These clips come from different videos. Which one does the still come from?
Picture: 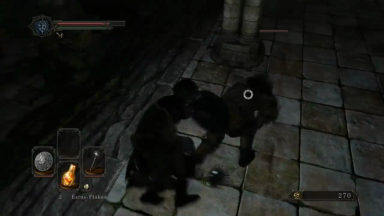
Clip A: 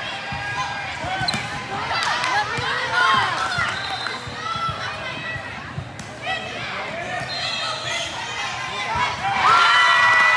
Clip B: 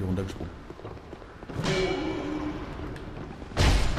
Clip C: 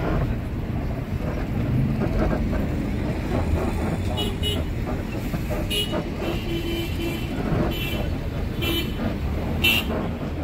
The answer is B